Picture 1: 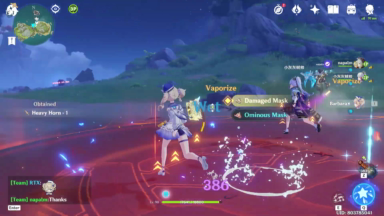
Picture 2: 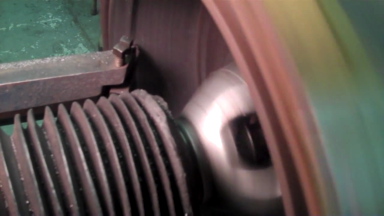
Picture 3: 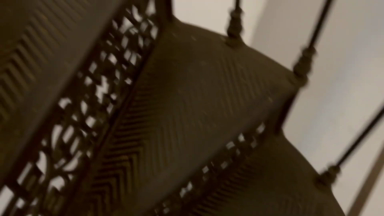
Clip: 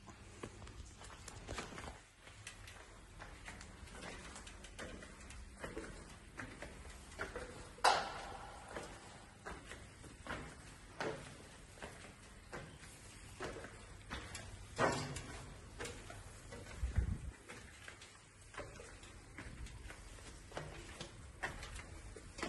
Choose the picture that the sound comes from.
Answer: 3